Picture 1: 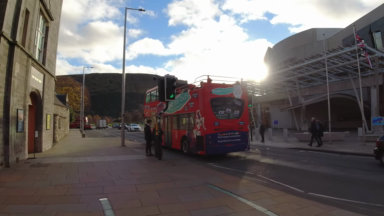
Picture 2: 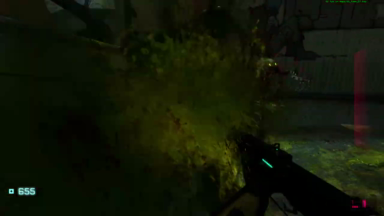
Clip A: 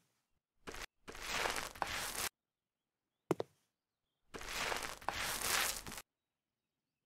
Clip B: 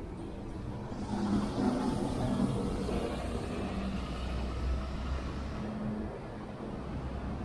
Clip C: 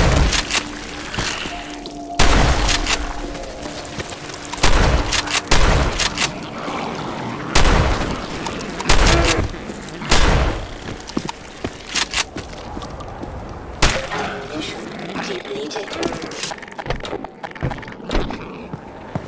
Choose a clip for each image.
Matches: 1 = B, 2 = C